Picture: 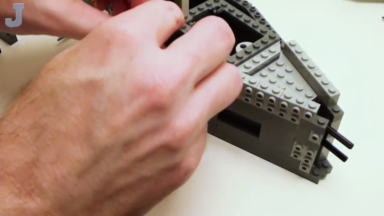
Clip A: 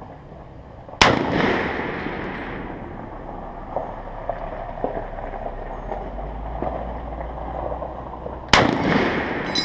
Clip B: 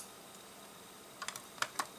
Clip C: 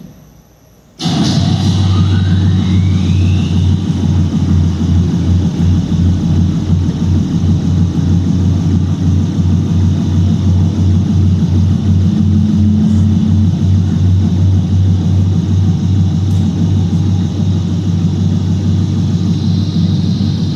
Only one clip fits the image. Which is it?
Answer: B